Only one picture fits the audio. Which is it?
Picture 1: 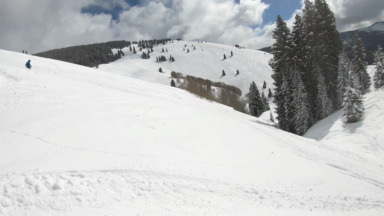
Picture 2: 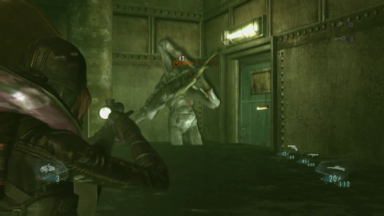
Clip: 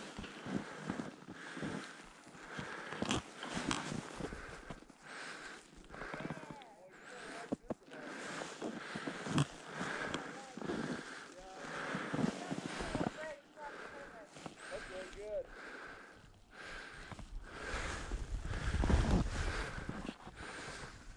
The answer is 1